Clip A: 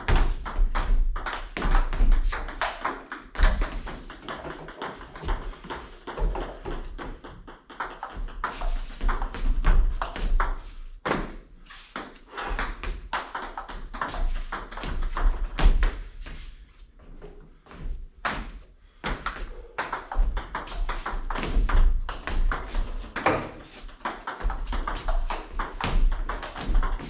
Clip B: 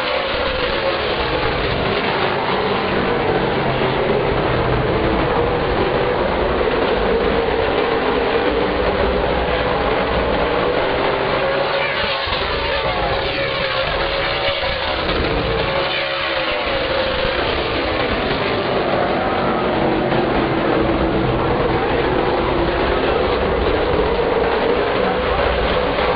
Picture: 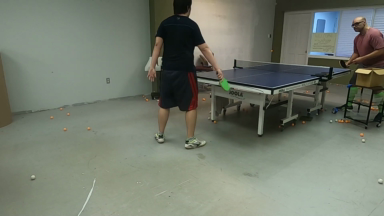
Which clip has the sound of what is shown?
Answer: A